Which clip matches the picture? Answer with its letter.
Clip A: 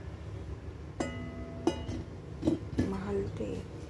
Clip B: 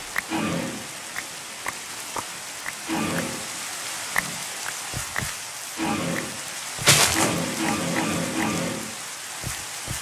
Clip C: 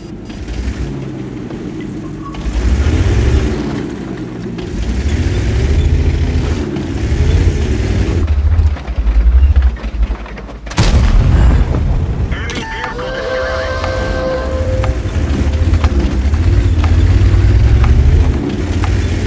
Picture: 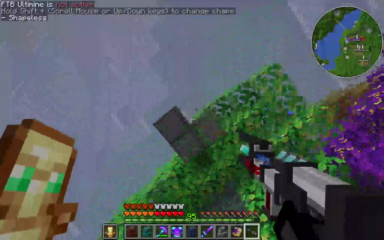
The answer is B